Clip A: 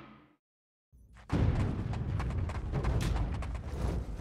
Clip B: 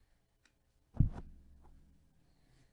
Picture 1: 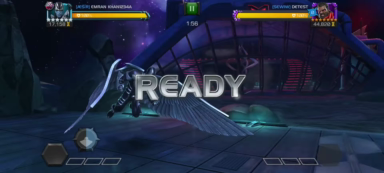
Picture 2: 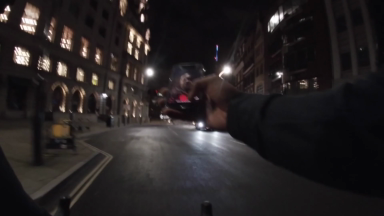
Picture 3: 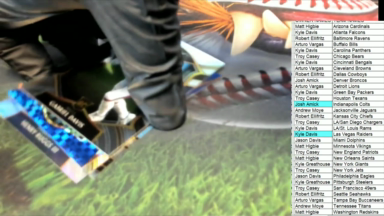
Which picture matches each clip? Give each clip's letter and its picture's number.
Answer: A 1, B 3